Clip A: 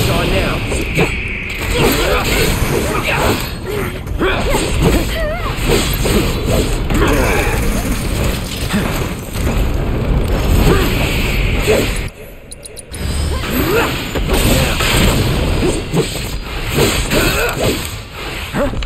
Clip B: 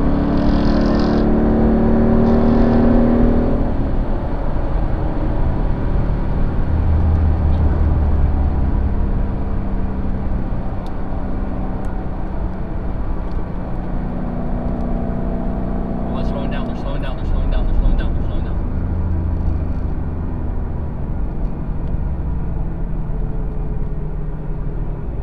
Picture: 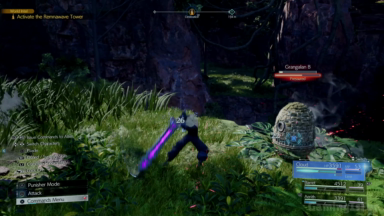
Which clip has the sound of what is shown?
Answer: A